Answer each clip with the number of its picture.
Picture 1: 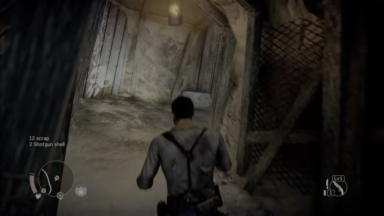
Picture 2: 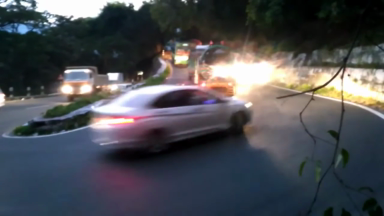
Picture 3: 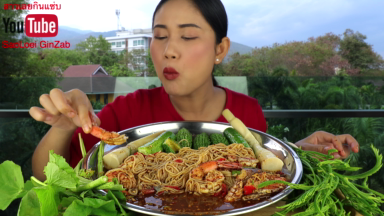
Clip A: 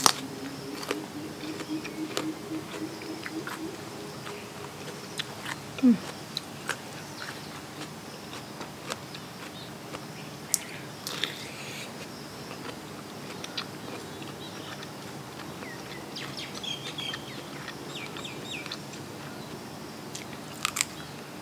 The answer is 3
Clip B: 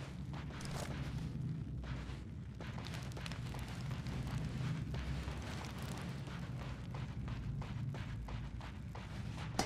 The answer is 1